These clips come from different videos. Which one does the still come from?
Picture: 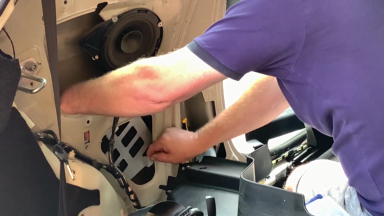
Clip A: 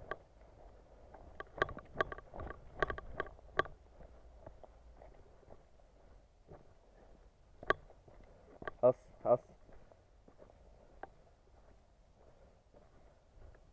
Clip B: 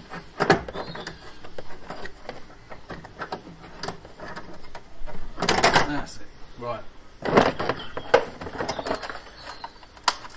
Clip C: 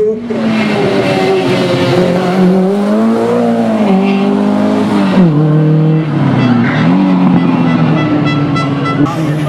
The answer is B